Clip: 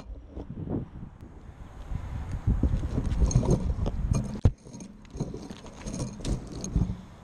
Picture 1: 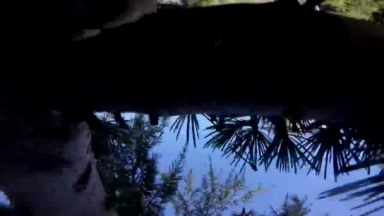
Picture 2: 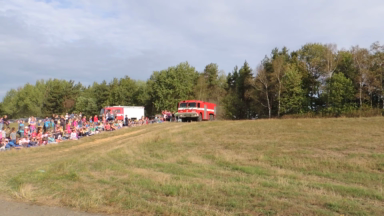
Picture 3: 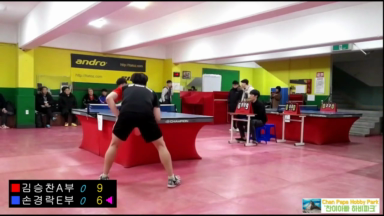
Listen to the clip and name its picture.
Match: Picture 1